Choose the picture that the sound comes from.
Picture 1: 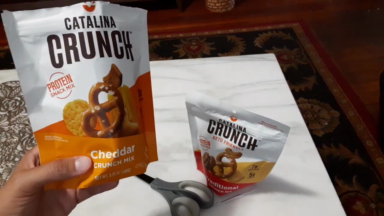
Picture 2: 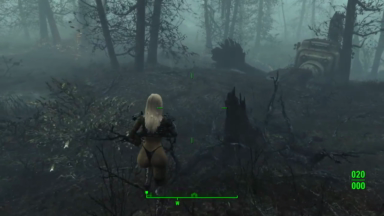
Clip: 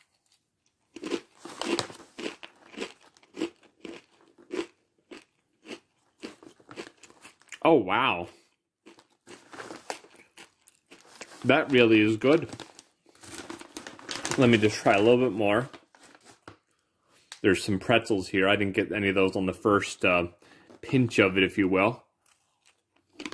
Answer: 1